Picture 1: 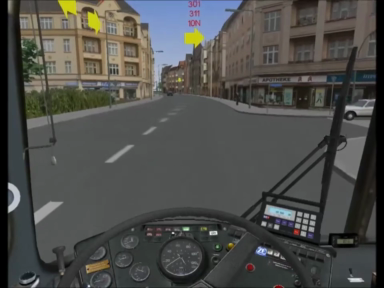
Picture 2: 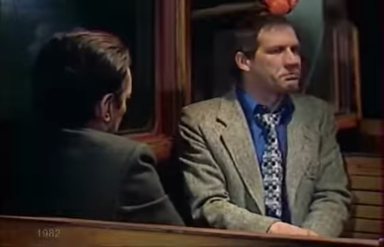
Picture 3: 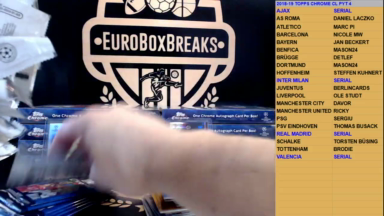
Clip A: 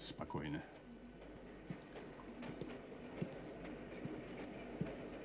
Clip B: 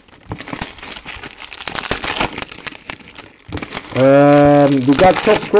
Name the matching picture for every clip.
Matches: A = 2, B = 3